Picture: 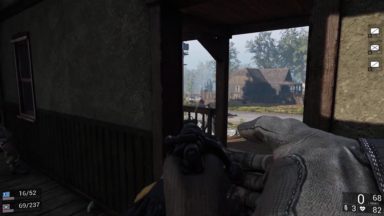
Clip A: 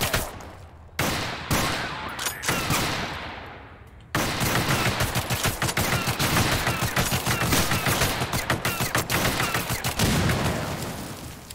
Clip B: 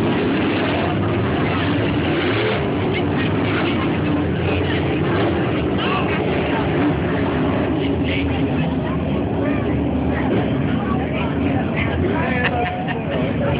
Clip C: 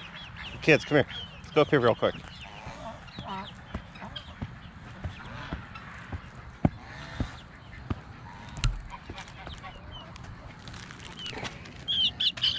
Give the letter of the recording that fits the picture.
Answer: A